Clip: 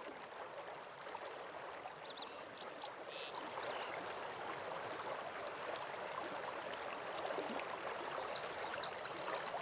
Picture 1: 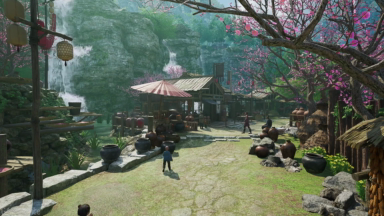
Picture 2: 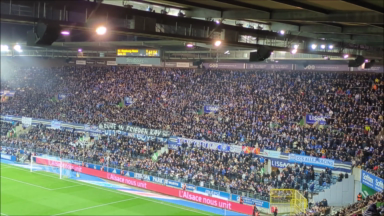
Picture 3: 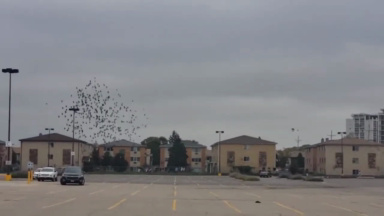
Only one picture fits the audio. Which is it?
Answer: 1